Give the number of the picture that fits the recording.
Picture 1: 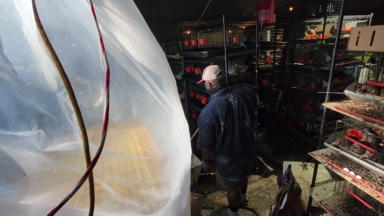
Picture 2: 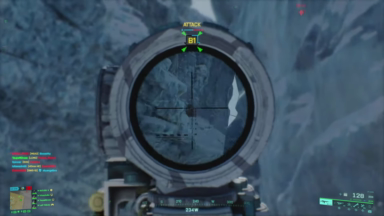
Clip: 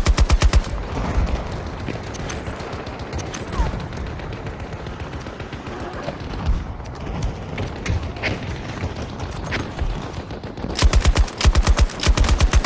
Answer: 2